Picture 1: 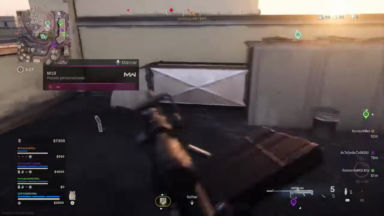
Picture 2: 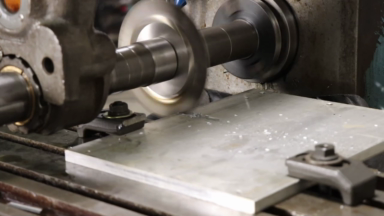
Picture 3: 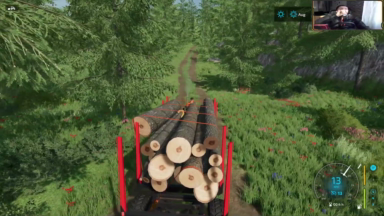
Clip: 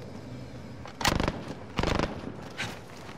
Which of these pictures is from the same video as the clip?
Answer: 1